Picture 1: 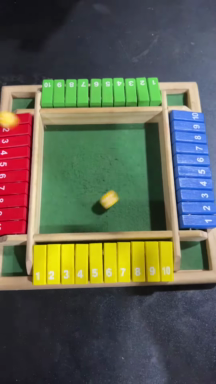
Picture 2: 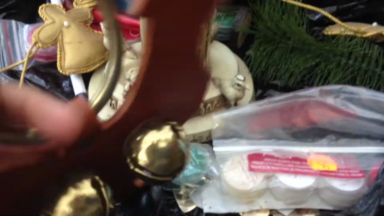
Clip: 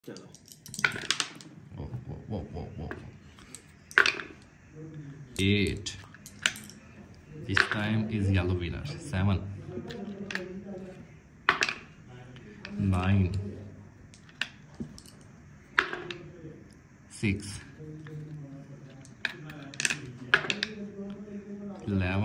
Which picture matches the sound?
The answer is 1